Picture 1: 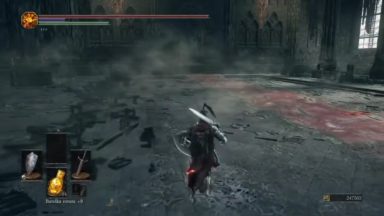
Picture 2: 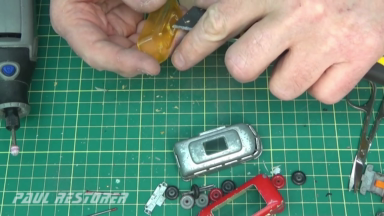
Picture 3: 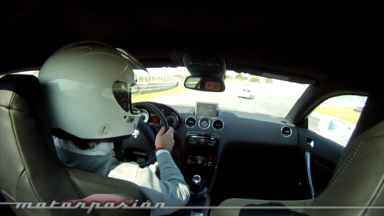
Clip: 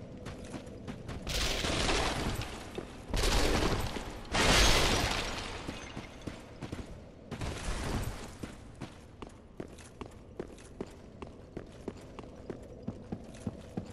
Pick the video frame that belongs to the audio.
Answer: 1